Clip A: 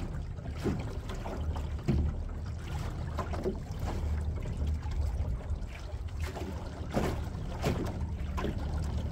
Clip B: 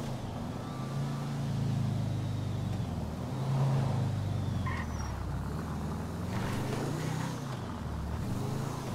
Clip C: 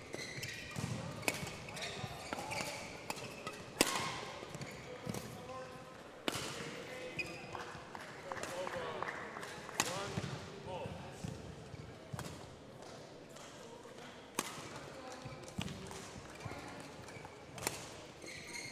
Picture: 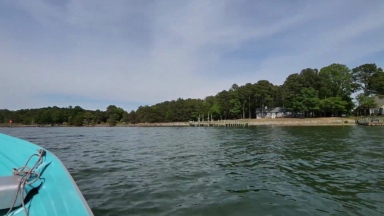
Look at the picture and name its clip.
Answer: A